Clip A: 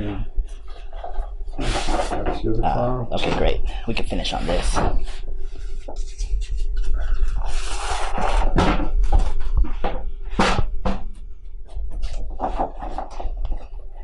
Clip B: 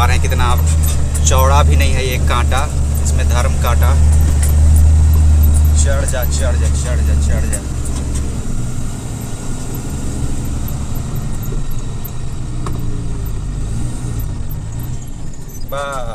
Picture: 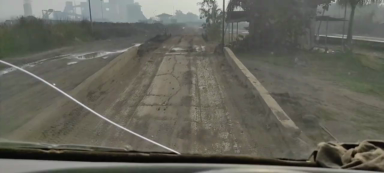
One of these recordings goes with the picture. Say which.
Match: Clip B